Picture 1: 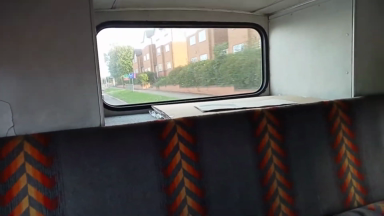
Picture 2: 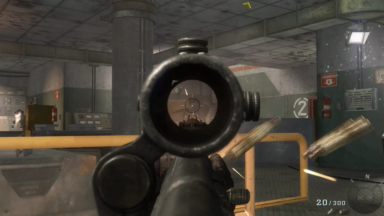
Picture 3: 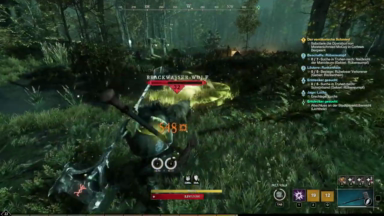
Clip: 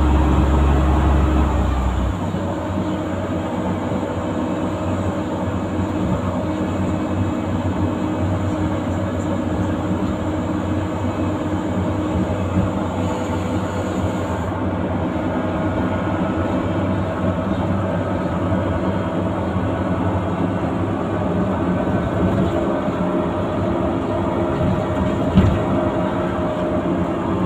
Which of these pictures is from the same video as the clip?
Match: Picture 1